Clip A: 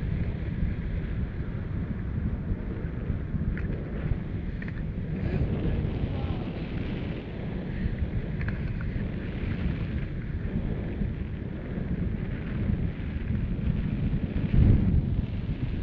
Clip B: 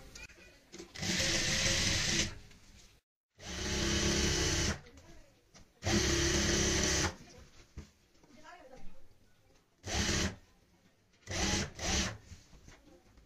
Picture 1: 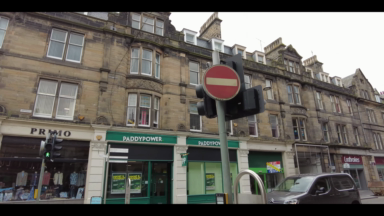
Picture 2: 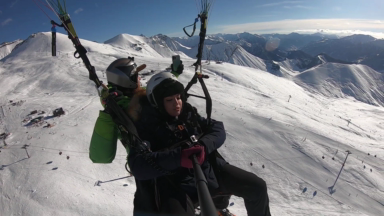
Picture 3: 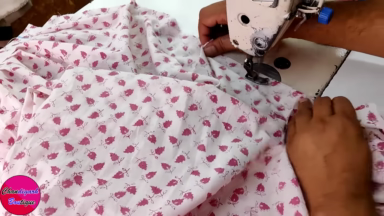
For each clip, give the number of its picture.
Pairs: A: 2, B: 3